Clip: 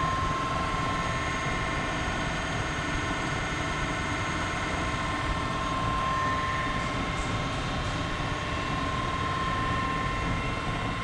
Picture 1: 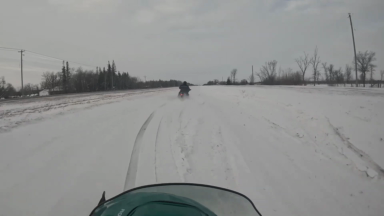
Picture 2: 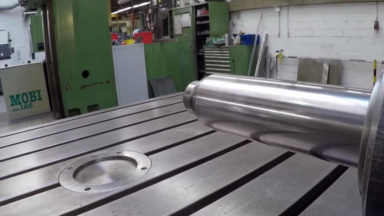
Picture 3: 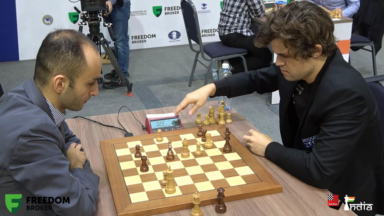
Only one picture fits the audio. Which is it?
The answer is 2